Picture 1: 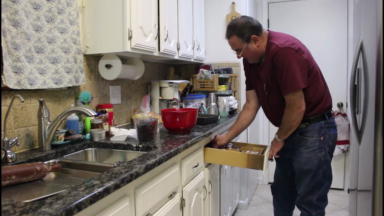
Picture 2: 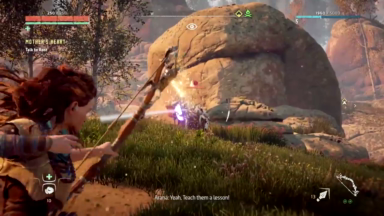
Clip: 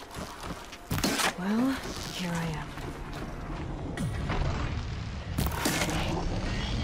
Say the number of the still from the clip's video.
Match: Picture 2